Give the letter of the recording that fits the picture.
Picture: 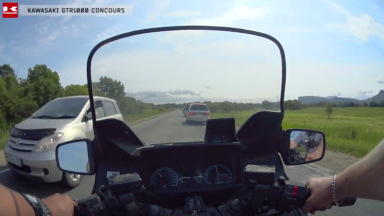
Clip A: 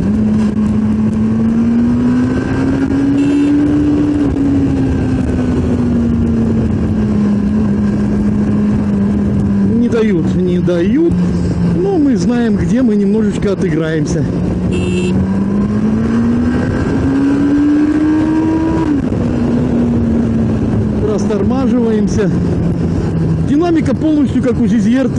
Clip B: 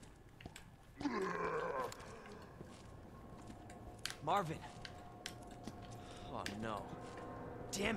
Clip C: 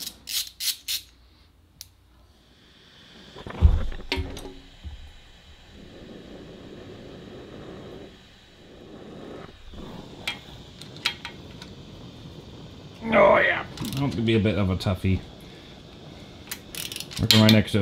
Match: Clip A